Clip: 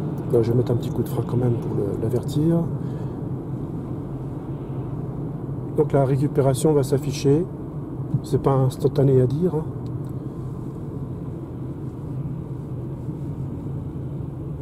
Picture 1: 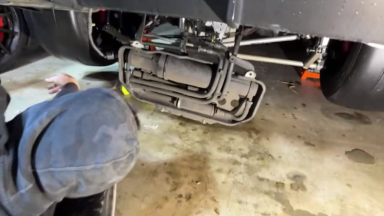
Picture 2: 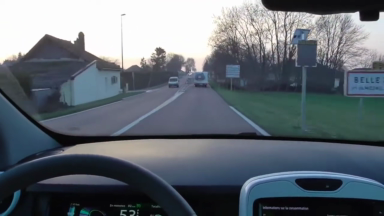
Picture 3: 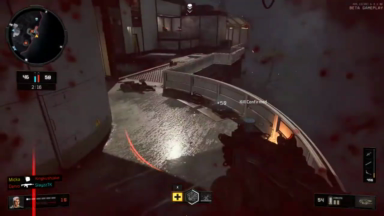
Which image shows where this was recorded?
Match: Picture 2